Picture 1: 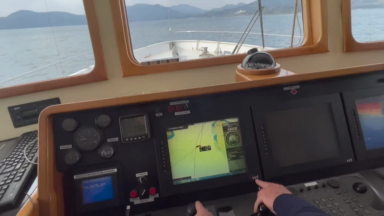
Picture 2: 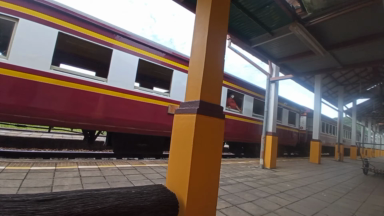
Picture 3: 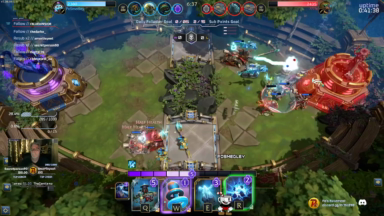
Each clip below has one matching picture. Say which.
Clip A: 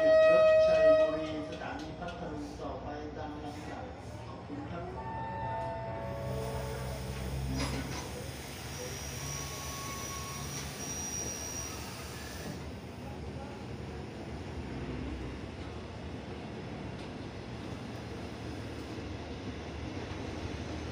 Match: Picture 2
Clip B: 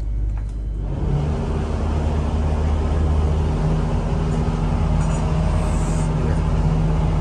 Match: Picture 1